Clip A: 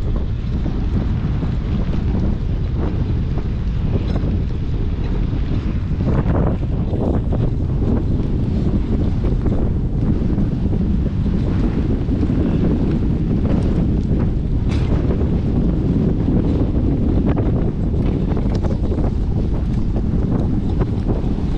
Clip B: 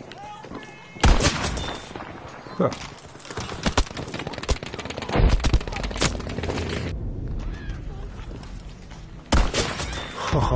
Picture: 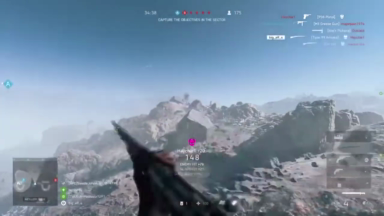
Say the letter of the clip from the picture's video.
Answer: B